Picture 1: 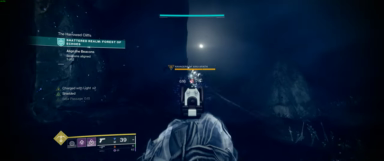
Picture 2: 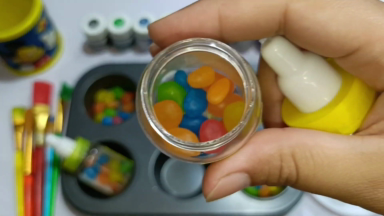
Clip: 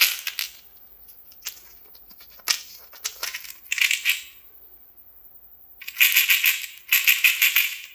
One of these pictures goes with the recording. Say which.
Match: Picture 2